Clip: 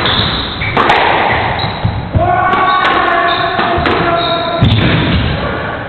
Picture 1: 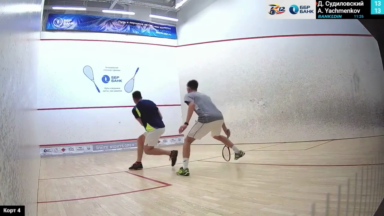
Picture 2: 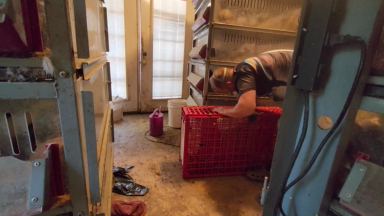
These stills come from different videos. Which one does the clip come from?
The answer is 1